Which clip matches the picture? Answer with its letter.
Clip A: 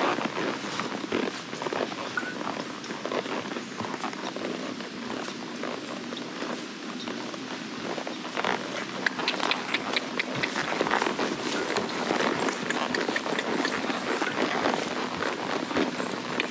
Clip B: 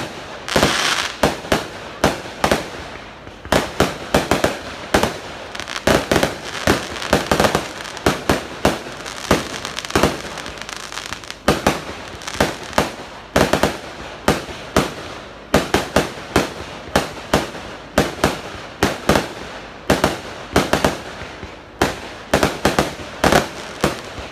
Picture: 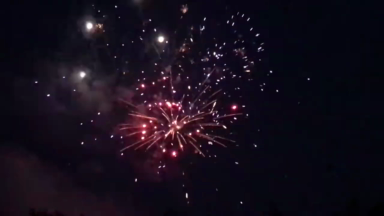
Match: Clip B